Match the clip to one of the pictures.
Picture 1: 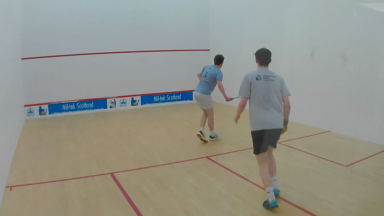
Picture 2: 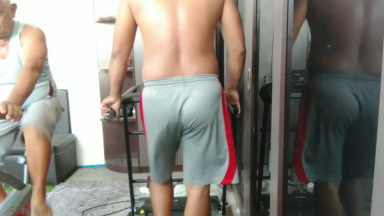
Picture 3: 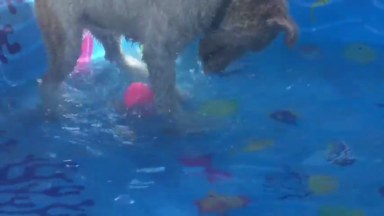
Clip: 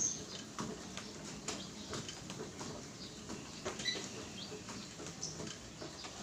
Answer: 2